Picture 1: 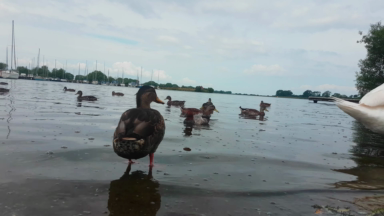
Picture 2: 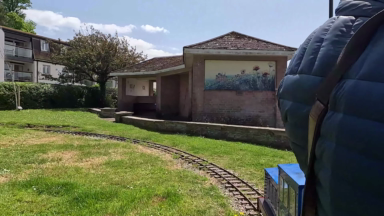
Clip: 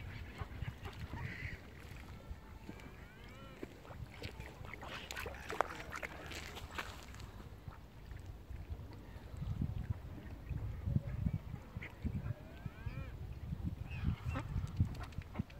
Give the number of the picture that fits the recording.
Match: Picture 1